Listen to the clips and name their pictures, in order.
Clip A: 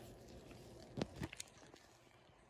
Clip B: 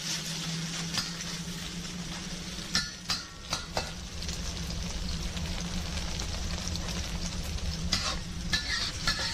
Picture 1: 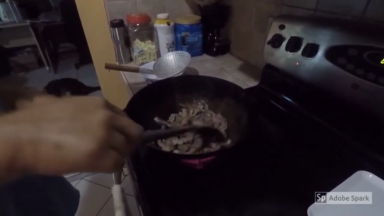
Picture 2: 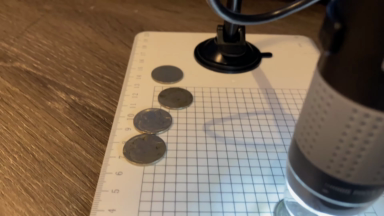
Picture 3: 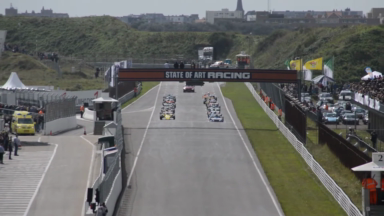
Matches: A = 2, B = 1